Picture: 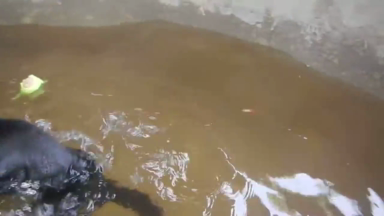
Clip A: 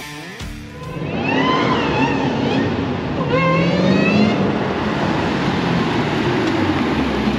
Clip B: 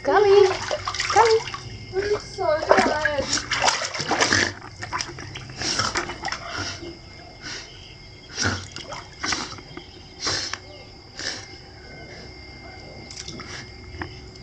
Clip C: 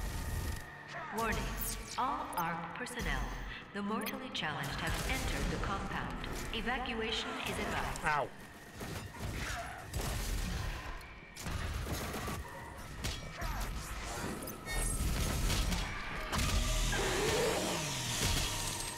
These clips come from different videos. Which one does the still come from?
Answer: B